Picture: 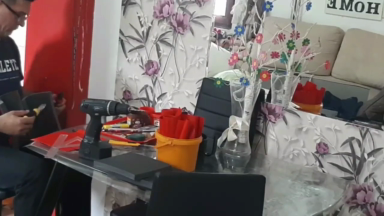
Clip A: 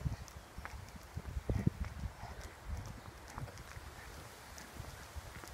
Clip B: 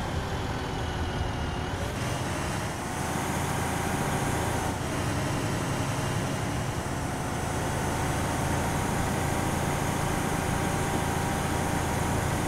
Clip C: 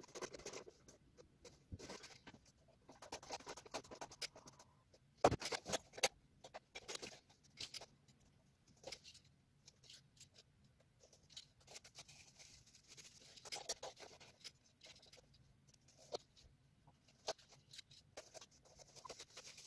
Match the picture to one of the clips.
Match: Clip C